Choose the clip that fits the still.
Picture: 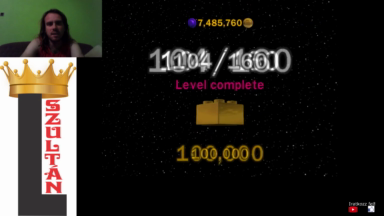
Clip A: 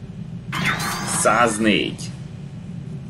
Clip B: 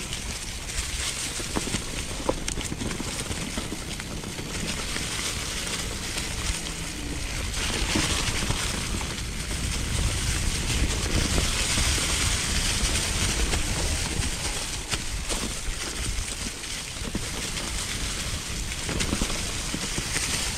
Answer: A